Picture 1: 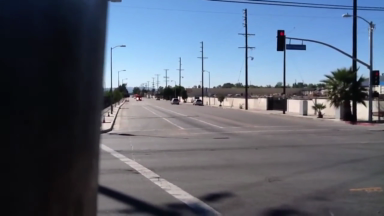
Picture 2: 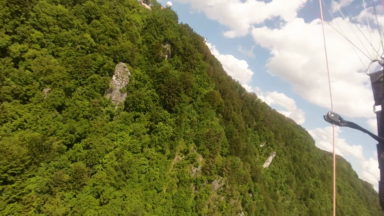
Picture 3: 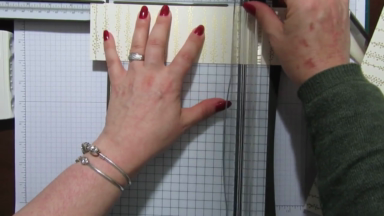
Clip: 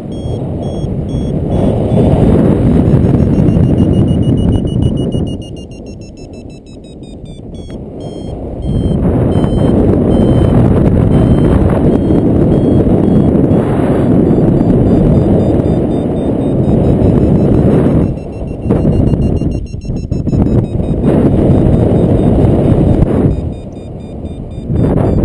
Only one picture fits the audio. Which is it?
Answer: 2